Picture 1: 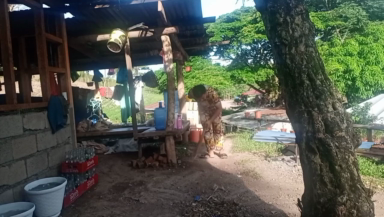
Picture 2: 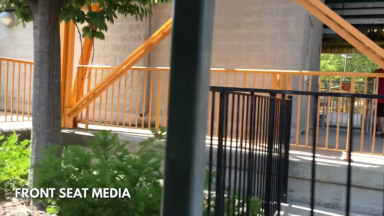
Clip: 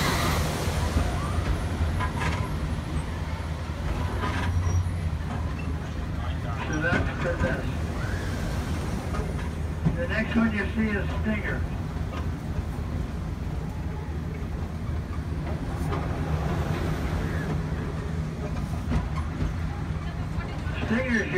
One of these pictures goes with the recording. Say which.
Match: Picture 2